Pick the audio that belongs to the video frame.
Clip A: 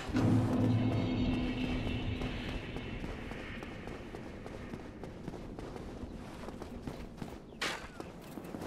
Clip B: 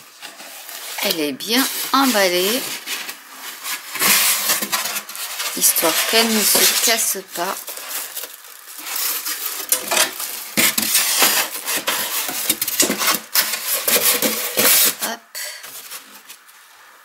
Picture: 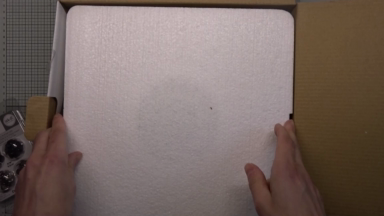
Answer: B